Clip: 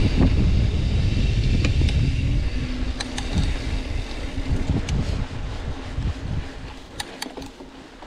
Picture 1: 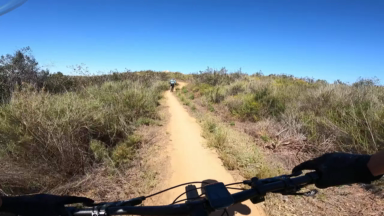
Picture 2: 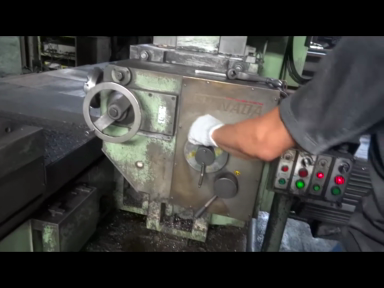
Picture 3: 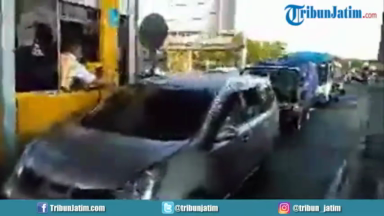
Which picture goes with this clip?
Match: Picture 1